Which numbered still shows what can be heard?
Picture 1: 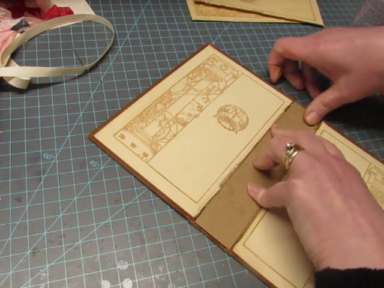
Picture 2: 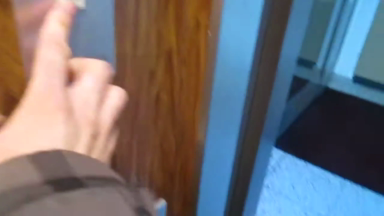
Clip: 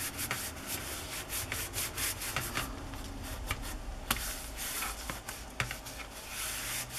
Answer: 1